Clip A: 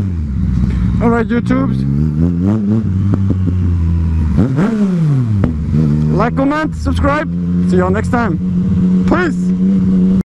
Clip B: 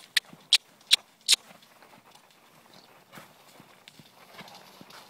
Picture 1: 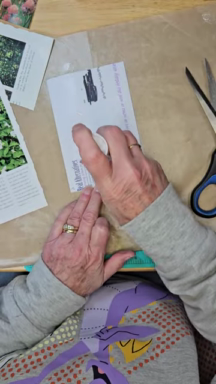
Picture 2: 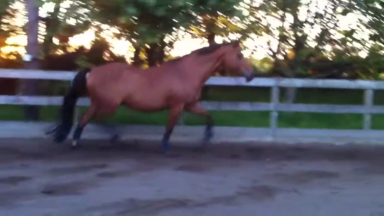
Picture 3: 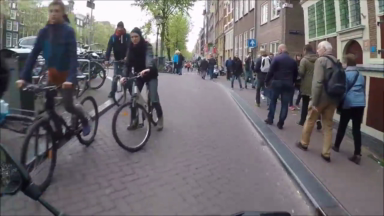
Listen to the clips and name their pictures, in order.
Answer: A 3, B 2